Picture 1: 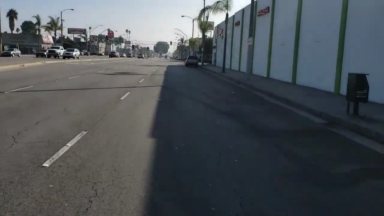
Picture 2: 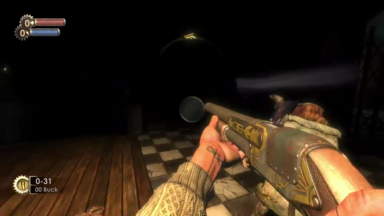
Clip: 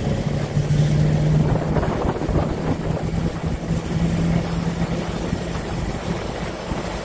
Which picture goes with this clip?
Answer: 1